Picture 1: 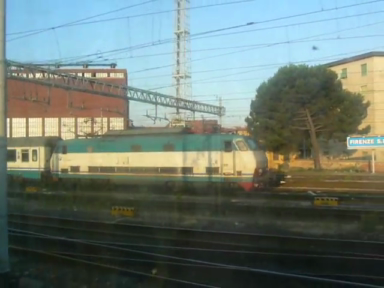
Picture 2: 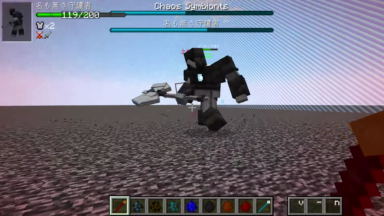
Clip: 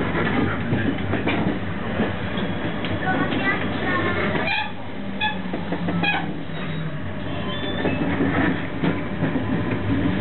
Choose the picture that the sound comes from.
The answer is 1